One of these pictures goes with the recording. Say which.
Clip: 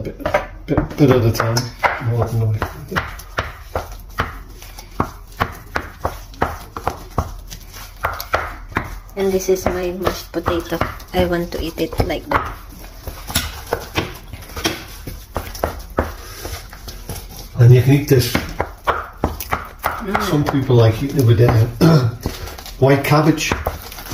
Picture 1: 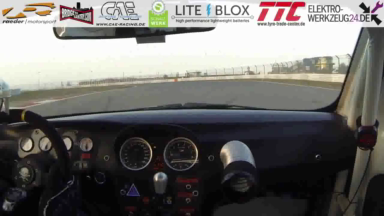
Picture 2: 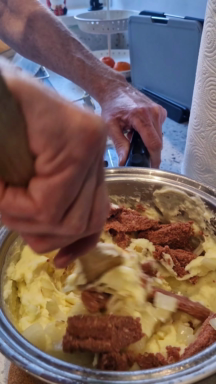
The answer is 2